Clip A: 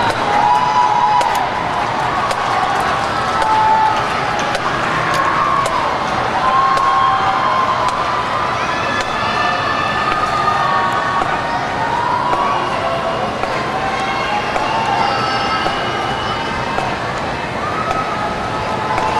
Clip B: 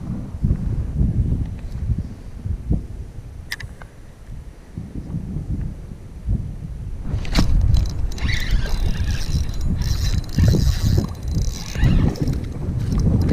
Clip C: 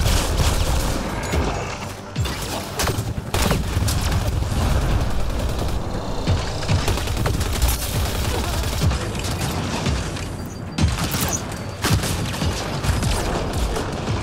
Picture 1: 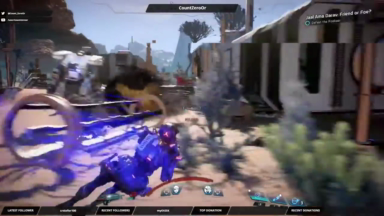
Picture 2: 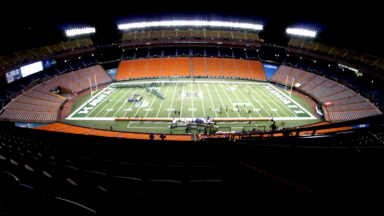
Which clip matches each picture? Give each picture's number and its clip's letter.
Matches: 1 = C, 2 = A